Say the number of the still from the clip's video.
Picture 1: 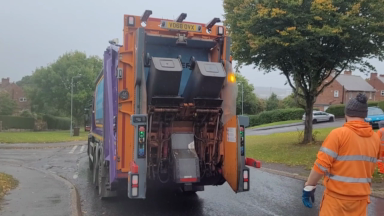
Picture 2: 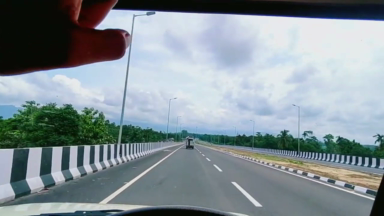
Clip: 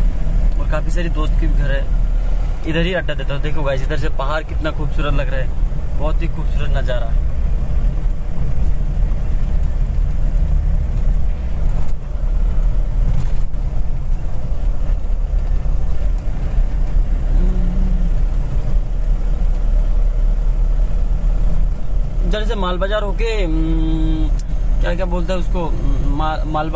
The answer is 2